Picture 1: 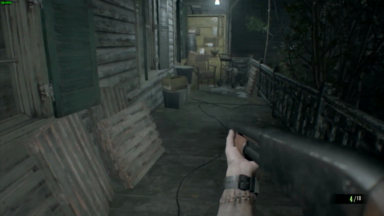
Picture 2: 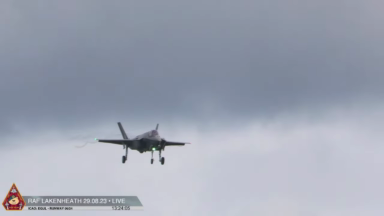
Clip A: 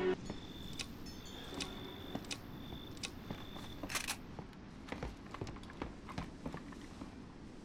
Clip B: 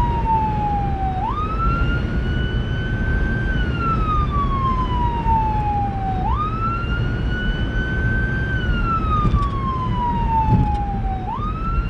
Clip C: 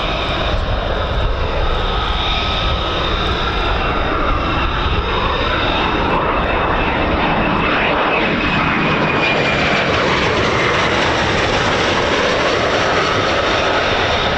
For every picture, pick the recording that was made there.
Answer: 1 A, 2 C